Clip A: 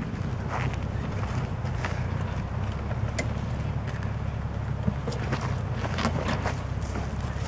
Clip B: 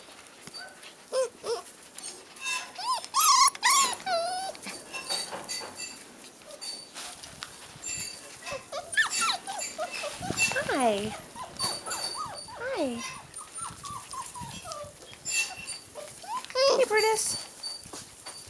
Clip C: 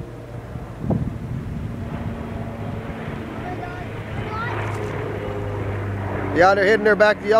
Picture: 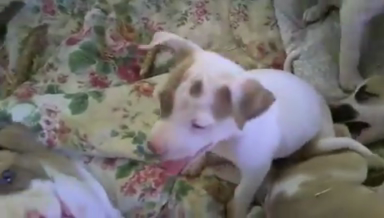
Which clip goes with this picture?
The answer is B